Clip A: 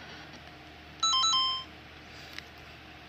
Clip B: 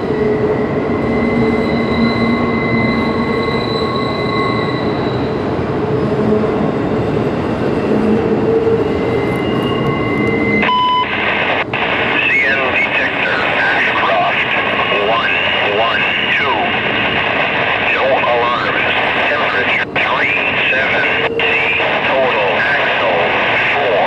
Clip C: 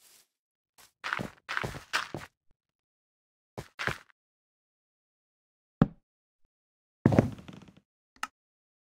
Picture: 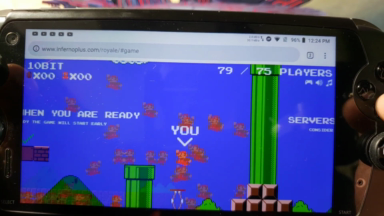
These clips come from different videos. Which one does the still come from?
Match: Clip A